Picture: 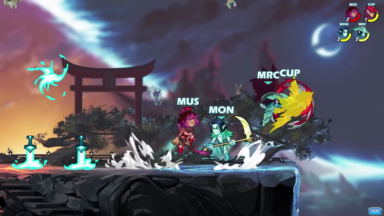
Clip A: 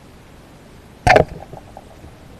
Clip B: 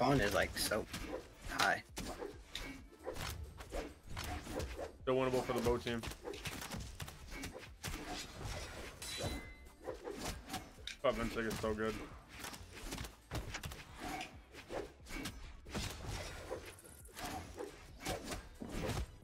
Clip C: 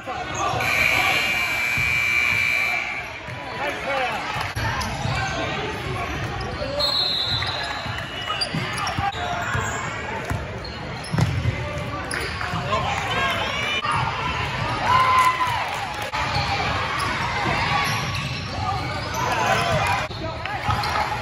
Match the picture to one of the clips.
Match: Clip B